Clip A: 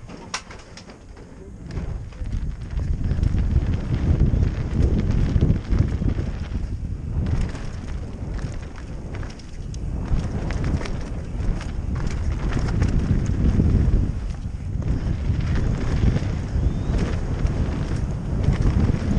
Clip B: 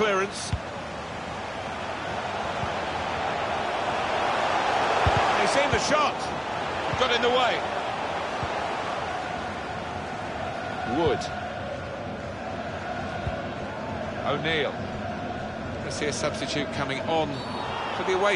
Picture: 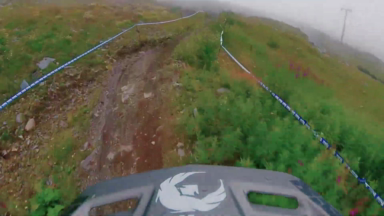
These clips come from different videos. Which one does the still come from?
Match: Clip A